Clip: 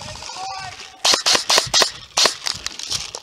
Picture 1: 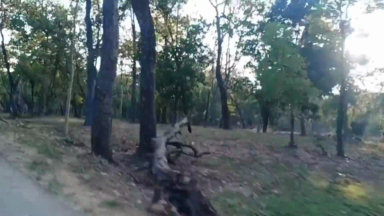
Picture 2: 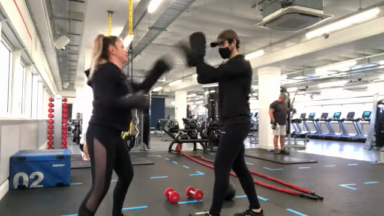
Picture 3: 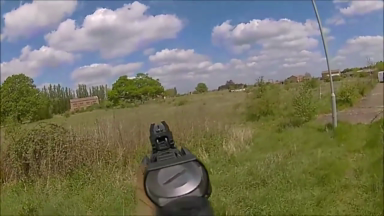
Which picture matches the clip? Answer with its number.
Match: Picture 3